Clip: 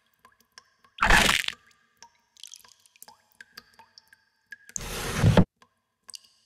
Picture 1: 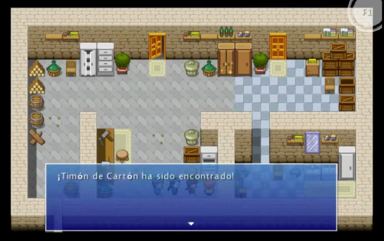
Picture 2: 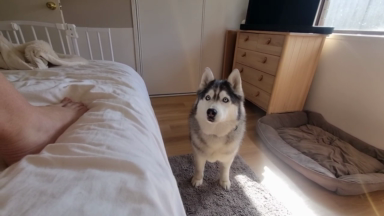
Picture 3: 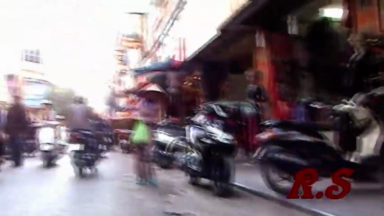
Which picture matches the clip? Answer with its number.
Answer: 1